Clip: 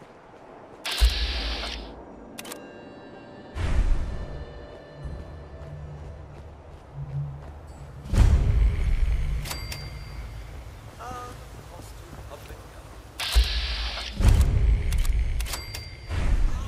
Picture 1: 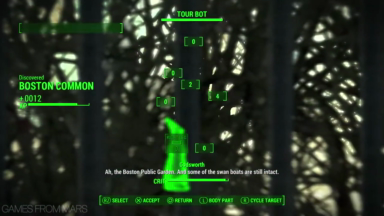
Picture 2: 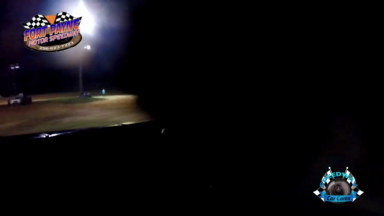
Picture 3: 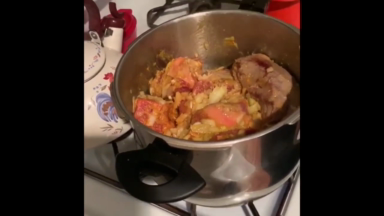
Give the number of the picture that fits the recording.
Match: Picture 1